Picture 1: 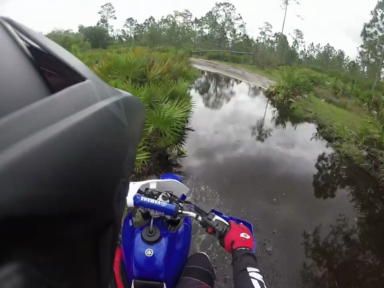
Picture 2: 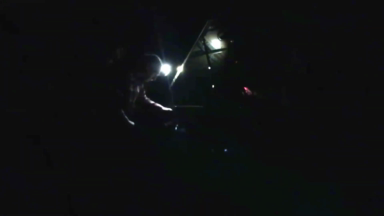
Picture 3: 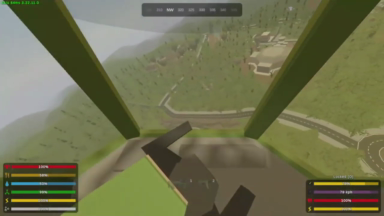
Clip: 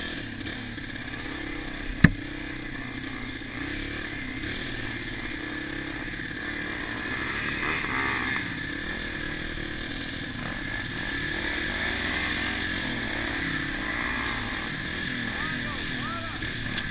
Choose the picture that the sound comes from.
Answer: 1